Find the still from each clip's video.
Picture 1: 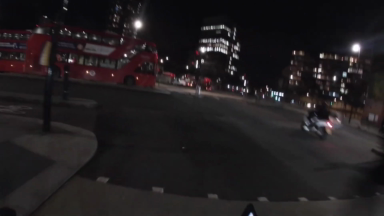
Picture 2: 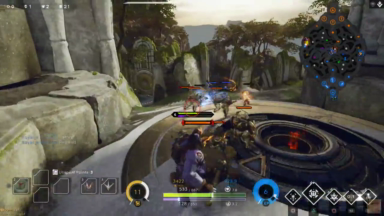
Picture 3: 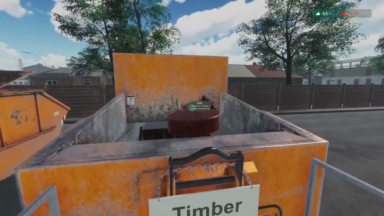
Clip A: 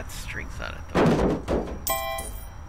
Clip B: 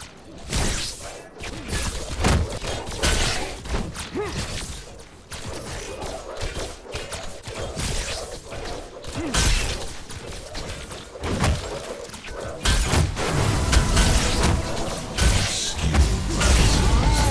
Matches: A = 3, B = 2